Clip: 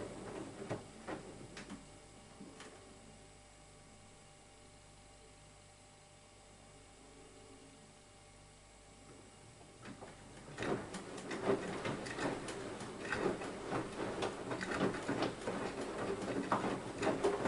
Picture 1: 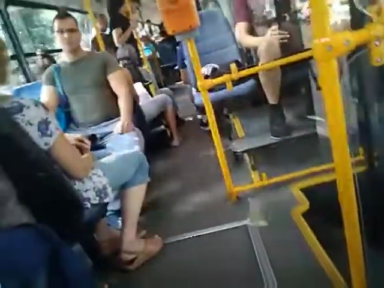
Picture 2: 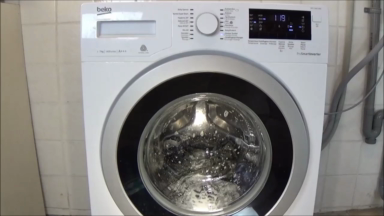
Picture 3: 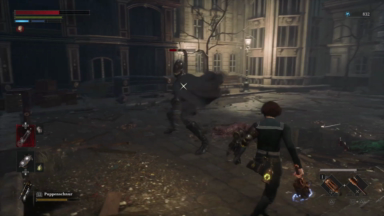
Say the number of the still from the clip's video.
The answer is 2